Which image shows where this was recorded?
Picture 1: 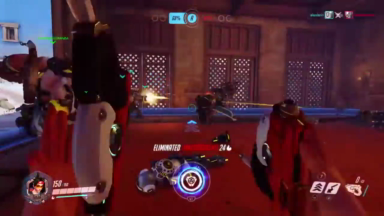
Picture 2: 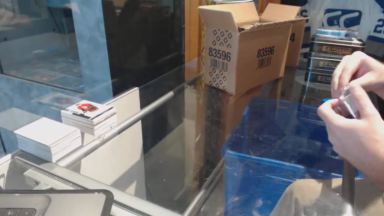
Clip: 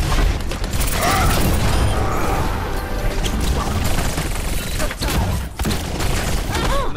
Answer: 1